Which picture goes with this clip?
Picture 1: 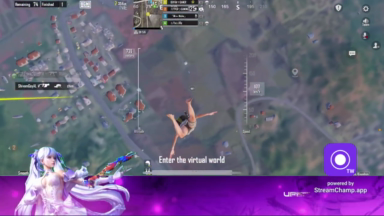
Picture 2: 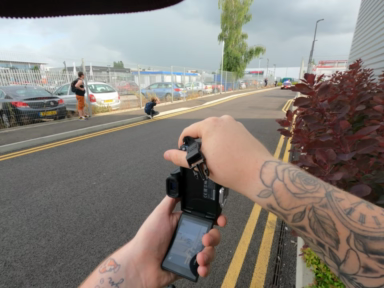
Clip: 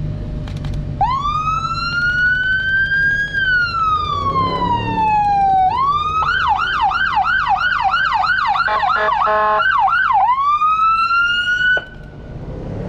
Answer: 2